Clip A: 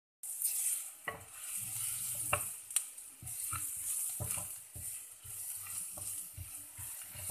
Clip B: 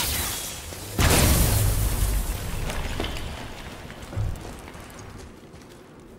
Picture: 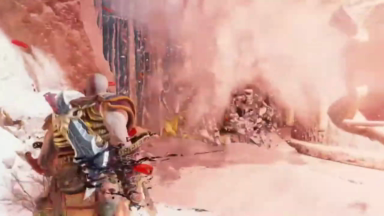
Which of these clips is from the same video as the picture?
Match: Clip B